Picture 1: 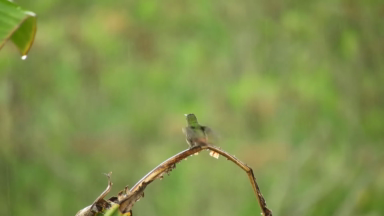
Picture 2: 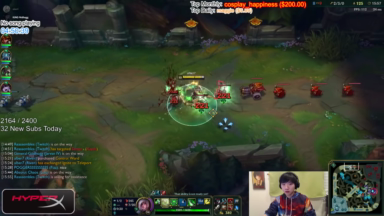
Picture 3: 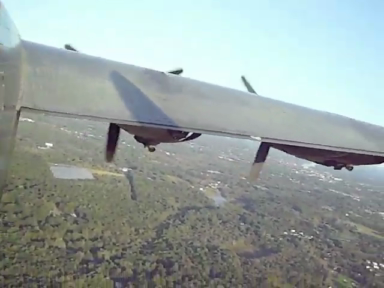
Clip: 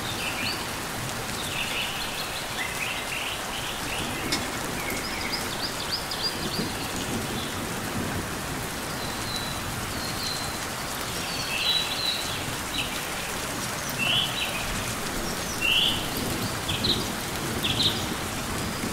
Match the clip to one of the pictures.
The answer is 1